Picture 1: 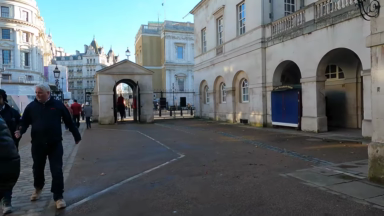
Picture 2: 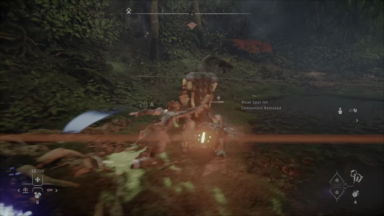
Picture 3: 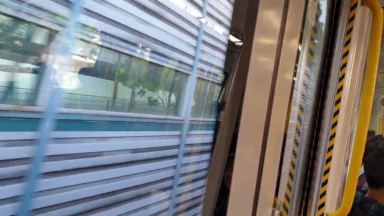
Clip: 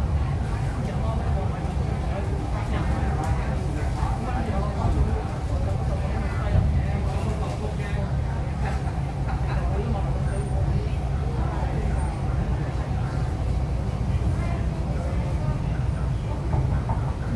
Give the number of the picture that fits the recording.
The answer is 3